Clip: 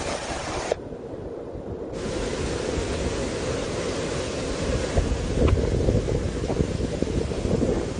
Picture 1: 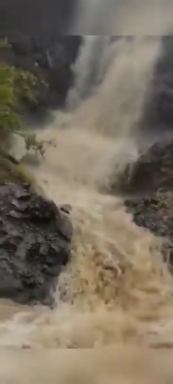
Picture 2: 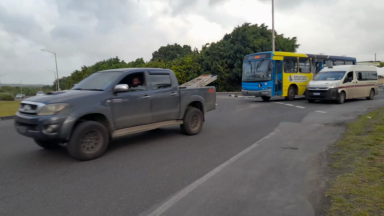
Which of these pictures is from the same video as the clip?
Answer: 1